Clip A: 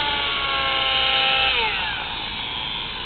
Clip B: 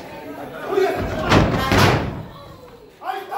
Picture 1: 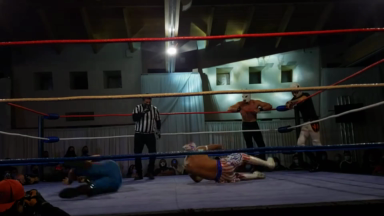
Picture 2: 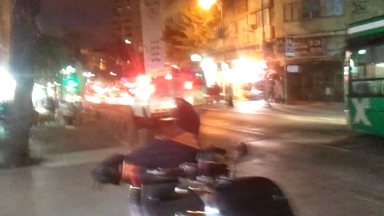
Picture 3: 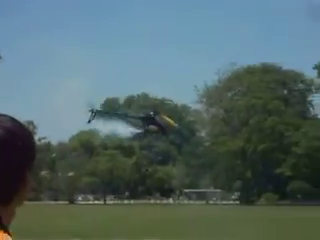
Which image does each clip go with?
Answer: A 3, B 1